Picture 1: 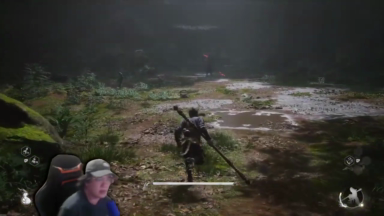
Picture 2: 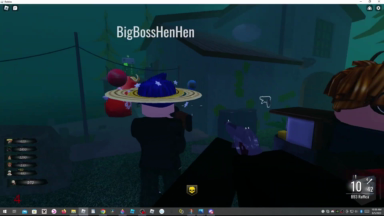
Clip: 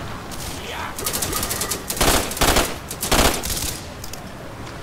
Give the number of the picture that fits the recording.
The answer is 2